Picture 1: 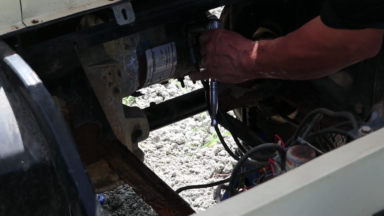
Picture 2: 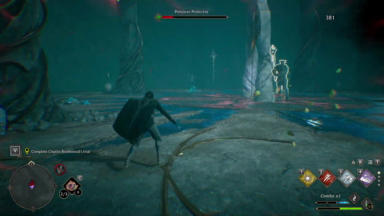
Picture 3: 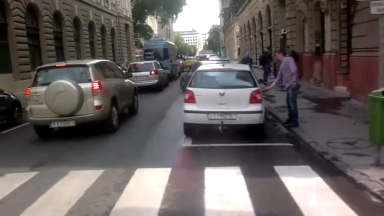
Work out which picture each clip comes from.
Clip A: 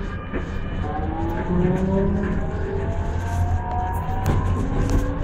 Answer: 3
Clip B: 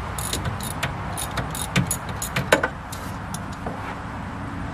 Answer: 1